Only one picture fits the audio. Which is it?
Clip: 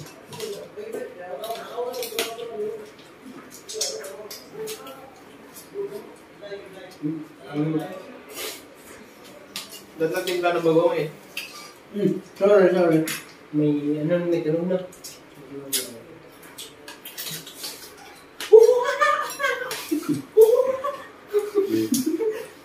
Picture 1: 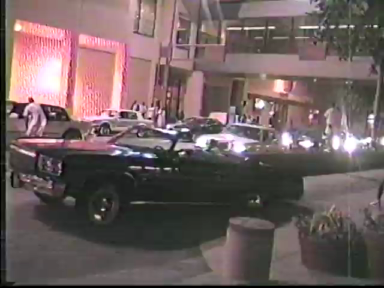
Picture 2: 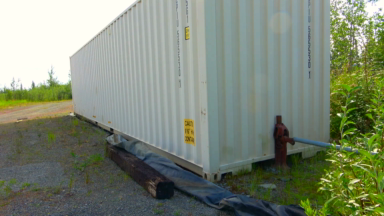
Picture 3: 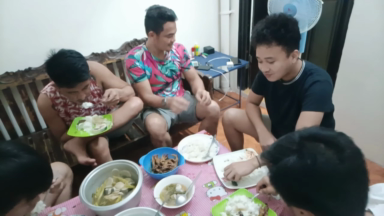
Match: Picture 3